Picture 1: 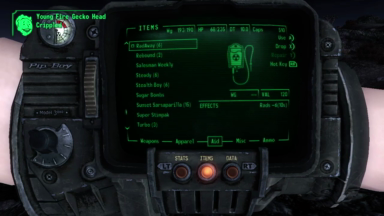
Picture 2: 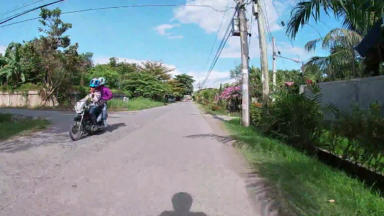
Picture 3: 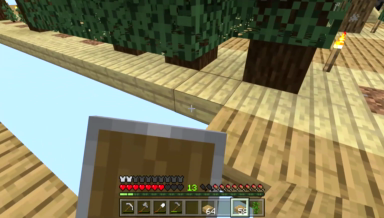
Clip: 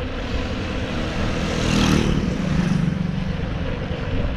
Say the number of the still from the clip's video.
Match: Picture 2